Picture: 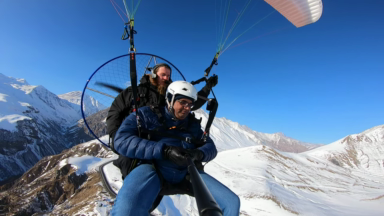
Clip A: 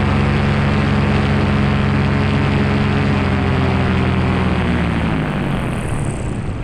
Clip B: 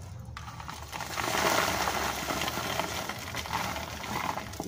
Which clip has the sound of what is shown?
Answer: A